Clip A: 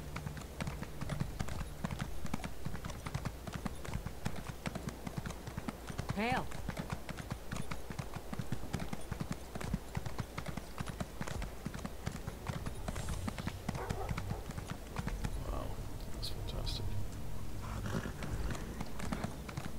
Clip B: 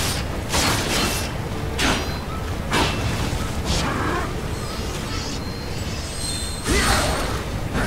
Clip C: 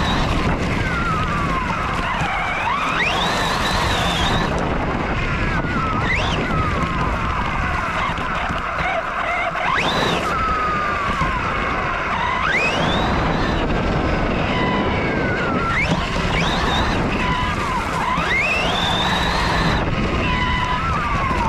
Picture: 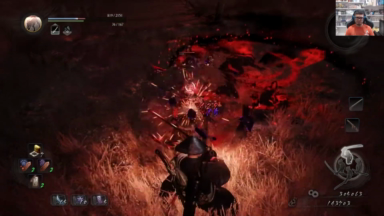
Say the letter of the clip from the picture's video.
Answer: B